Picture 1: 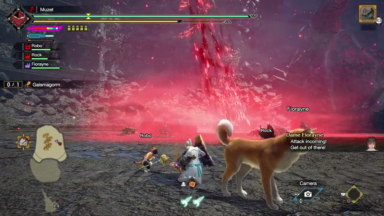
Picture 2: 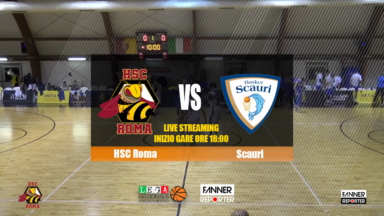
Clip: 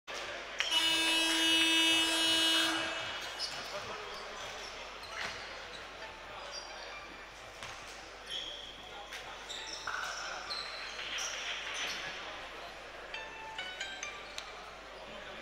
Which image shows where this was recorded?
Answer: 2